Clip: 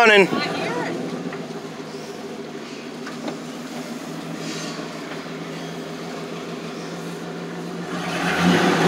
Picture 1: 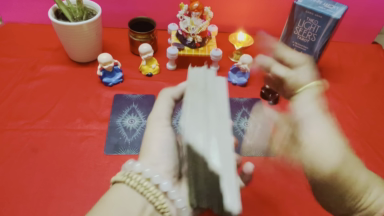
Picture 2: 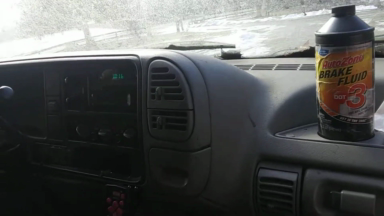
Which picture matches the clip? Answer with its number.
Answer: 2